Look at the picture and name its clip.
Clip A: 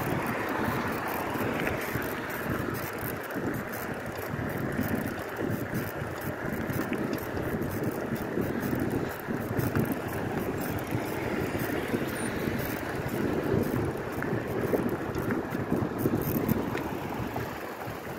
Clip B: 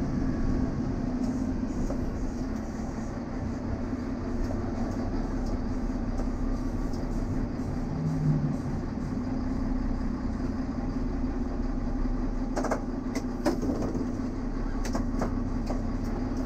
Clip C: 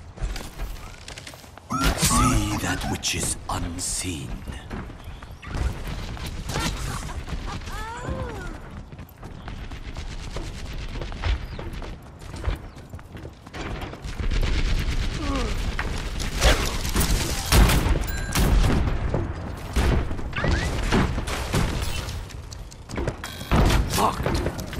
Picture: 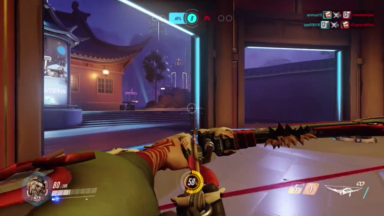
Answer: C